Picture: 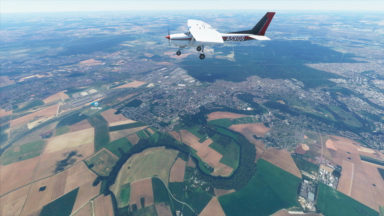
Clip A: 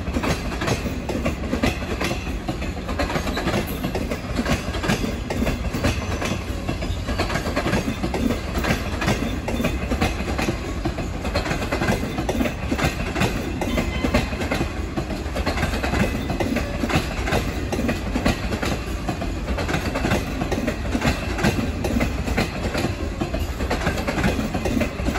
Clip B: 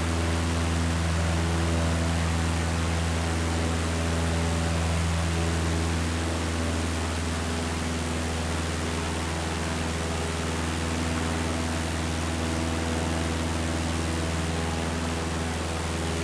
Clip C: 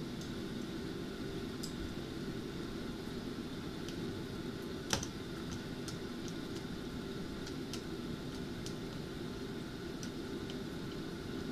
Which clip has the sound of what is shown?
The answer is B